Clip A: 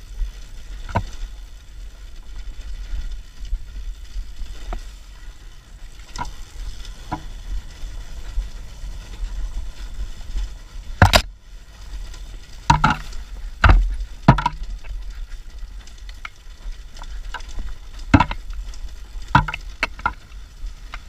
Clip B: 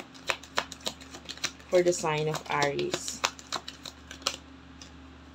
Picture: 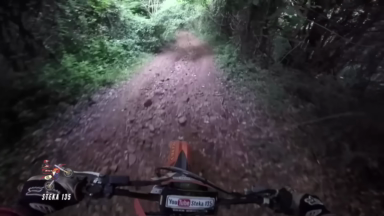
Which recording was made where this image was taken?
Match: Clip A